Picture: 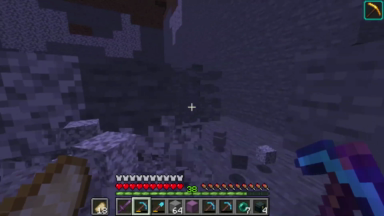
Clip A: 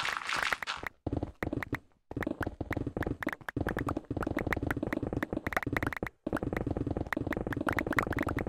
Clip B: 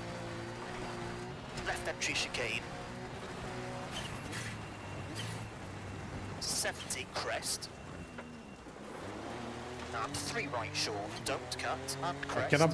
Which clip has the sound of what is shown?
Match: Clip A